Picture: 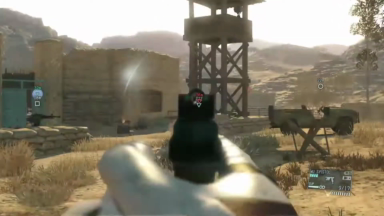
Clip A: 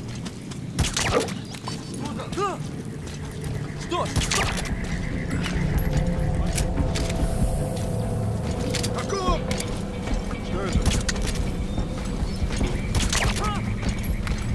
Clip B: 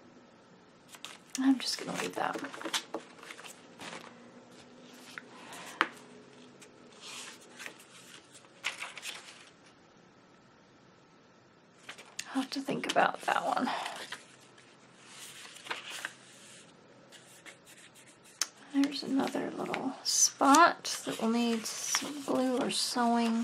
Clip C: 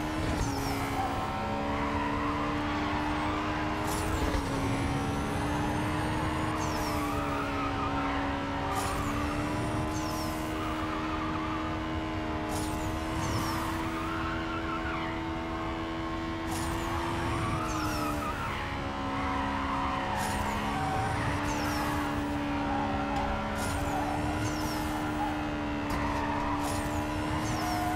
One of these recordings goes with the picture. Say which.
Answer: A